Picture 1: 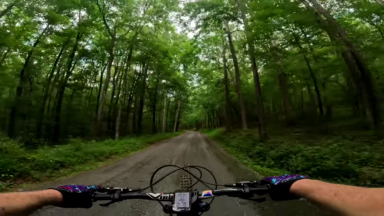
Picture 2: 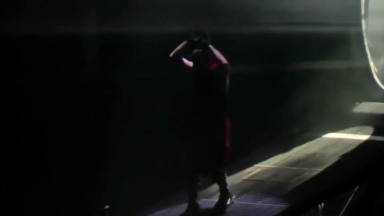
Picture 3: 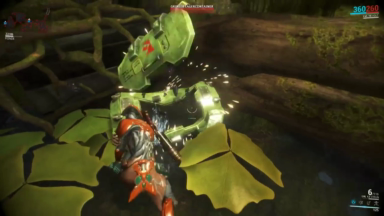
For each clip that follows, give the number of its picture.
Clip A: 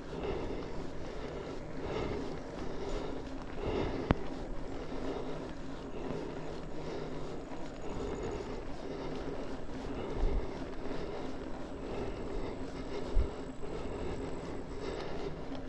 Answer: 1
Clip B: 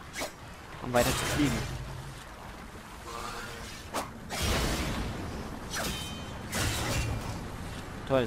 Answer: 3